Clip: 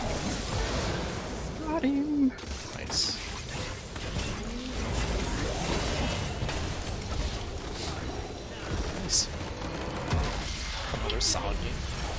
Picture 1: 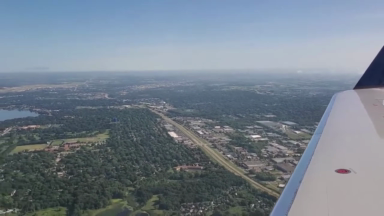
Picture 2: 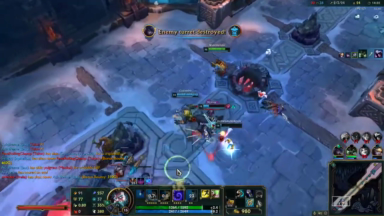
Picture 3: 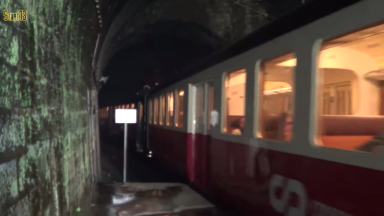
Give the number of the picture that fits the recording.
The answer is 2